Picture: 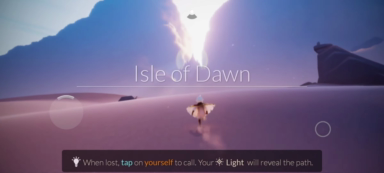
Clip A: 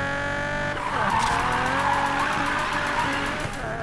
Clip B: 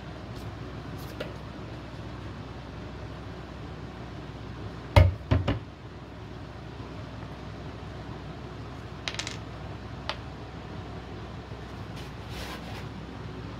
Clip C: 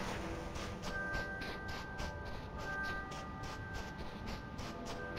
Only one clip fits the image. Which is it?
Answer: C